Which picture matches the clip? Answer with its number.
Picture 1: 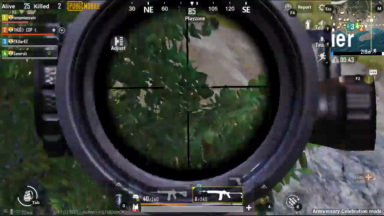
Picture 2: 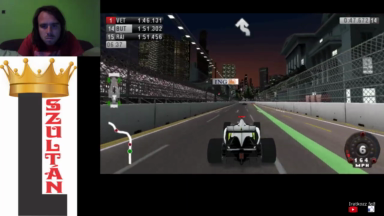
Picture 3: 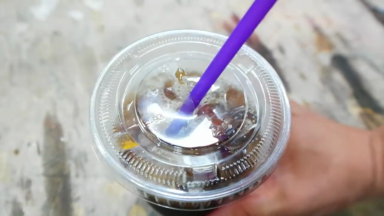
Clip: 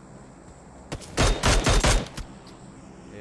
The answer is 1